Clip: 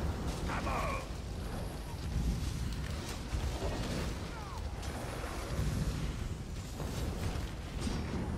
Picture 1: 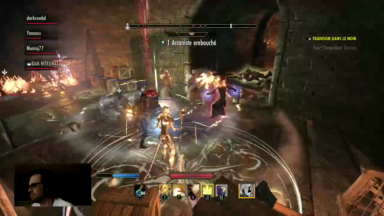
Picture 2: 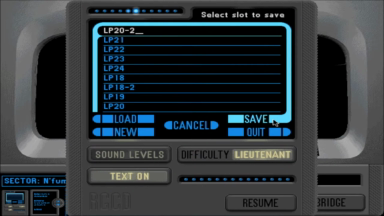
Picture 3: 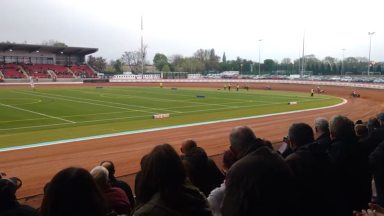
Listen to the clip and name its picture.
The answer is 1